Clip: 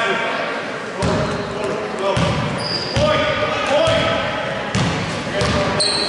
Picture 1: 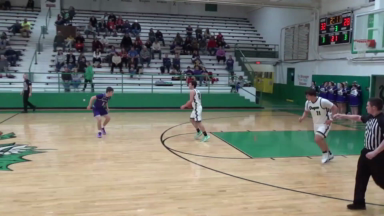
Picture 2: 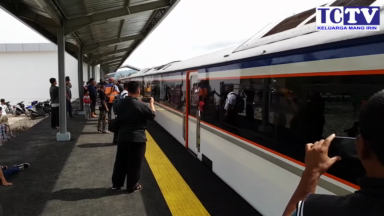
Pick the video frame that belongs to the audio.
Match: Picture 1